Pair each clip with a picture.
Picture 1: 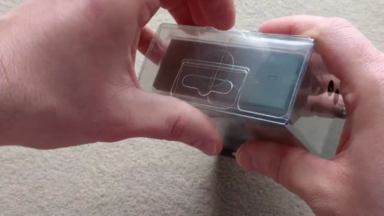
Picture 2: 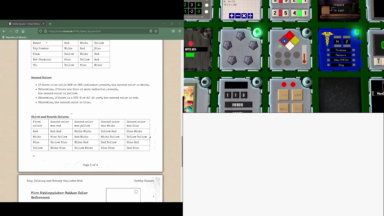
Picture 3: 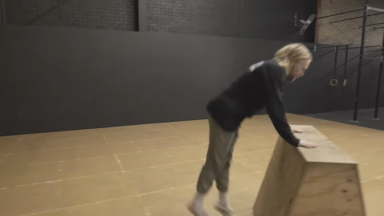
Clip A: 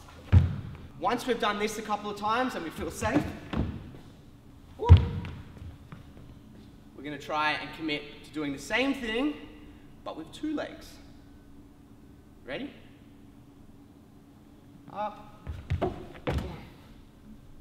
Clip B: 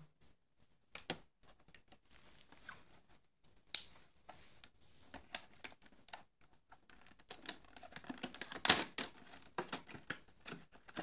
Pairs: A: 3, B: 1